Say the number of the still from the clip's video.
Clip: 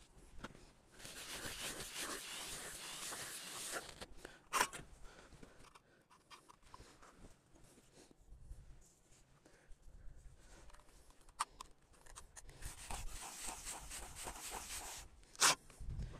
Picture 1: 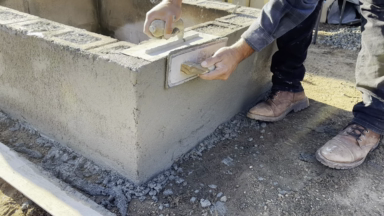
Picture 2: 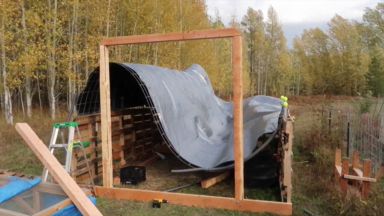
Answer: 1